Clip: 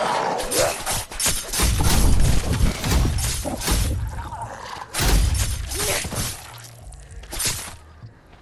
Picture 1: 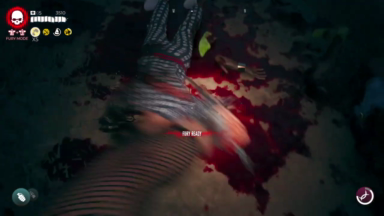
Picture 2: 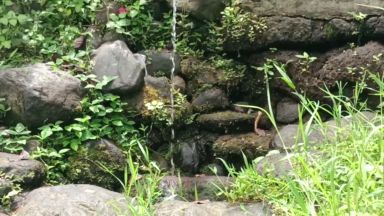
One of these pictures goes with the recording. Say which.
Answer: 1